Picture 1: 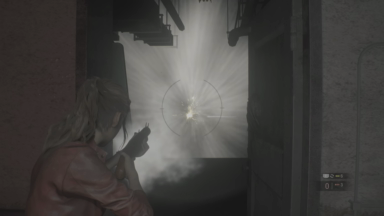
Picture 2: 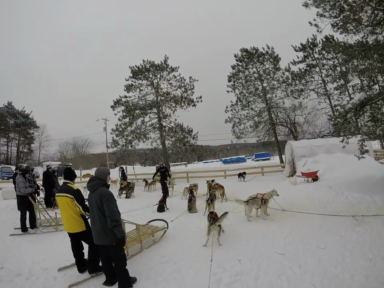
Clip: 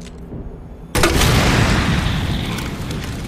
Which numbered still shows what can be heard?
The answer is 1